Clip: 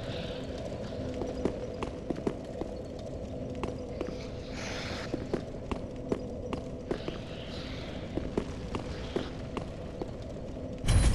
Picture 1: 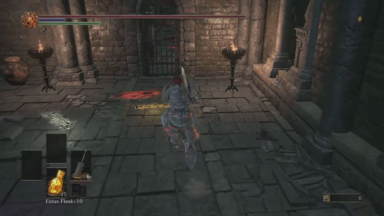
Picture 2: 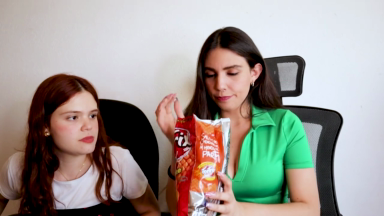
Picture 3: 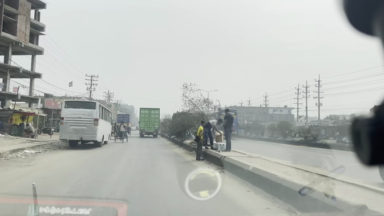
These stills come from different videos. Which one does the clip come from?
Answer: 1